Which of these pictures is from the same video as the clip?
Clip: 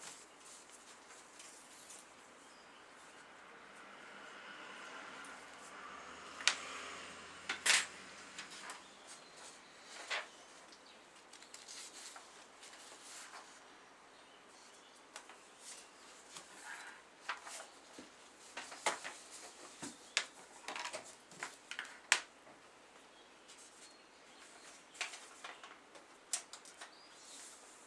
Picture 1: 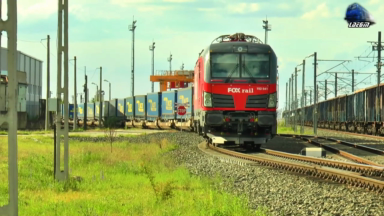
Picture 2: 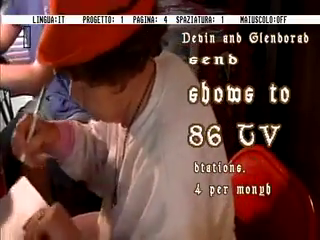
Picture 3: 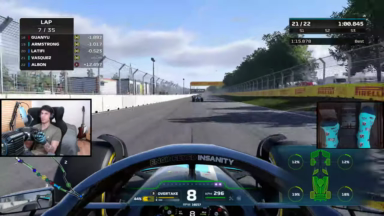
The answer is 2